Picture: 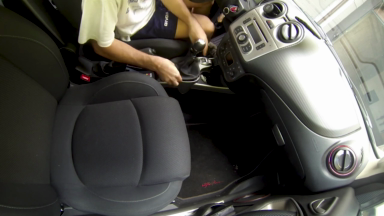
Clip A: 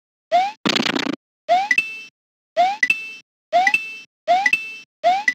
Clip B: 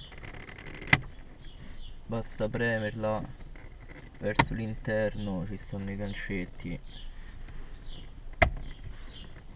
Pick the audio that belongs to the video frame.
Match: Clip B